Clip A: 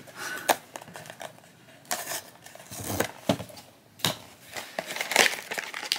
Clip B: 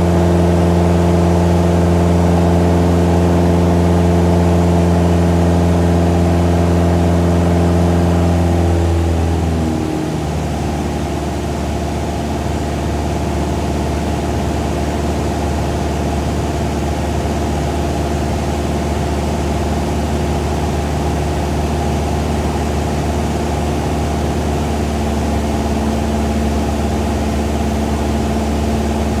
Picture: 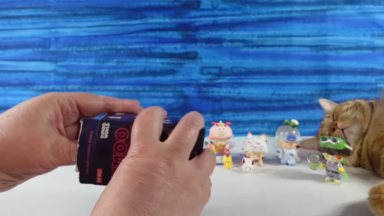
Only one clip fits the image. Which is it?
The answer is A